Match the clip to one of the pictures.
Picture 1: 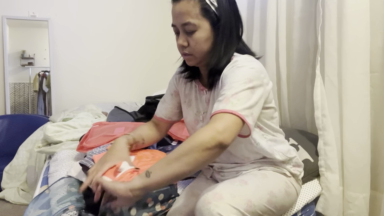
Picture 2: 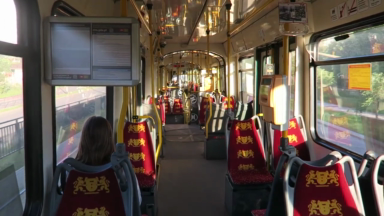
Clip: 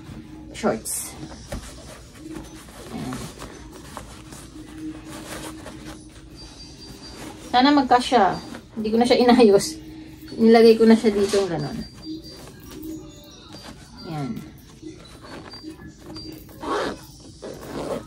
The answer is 1